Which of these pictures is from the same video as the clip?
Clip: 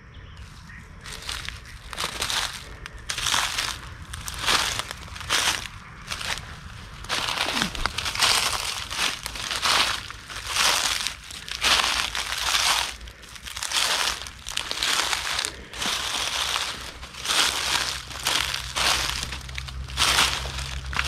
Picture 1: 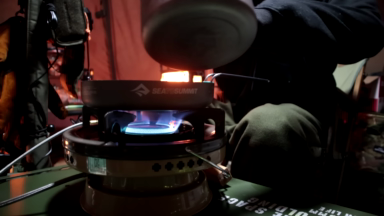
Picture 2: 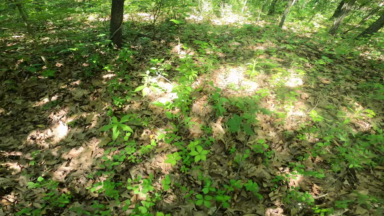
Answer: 2